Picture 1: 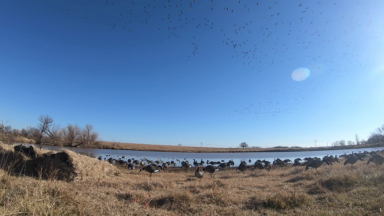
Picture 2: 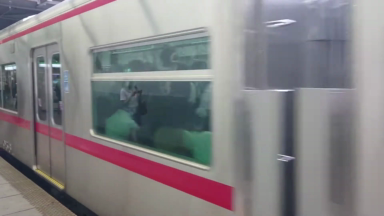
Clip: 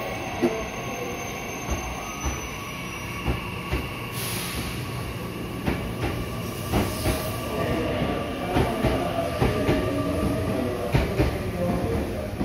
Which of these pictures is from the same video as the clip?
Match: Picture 2